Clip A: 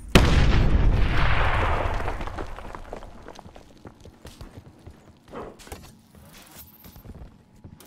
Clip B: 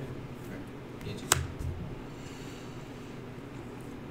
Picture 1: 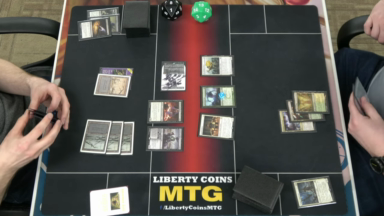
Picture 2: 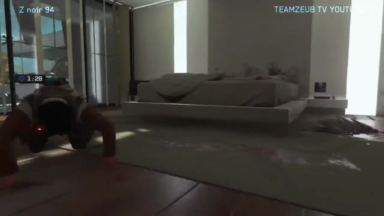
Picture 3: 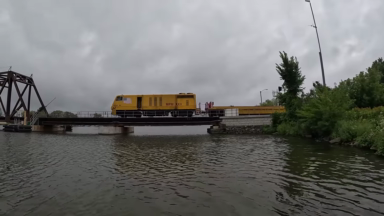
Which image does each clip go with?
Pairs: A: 2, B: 1